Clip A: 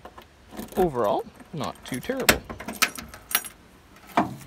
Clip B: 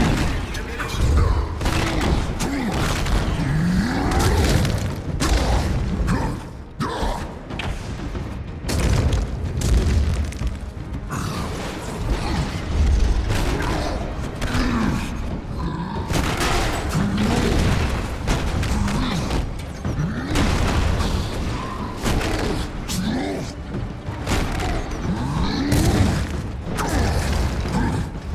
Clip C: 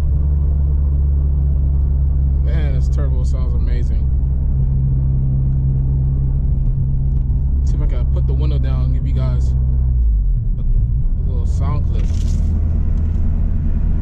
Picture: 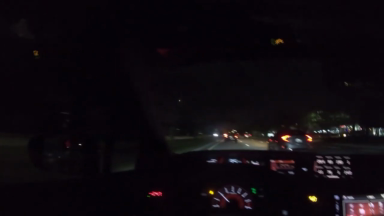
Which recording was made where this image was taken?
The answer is C